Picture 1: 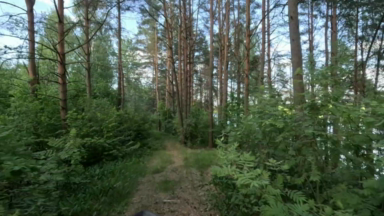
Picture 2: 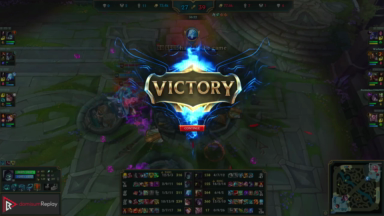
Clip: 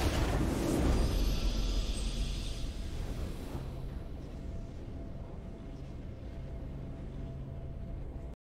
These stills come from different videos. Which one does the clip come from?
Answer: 2